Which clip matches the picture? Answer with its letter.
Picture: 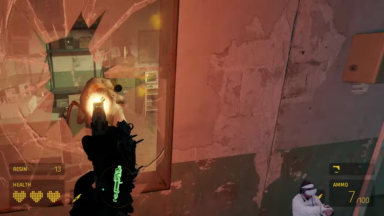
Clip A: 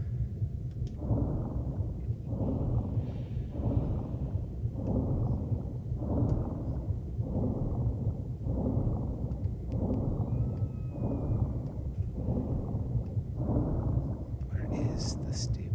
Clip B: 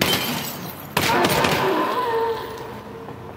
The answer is B